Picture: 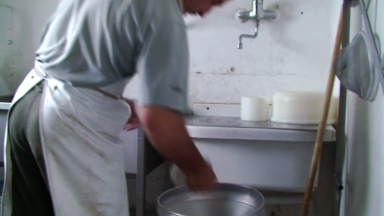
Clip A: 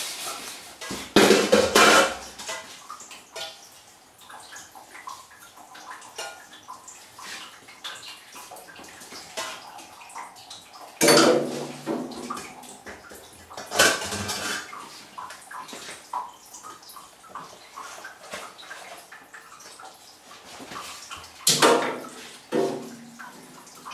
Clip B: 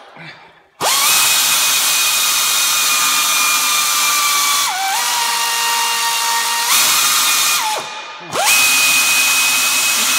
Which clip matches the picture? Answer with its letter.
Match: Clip A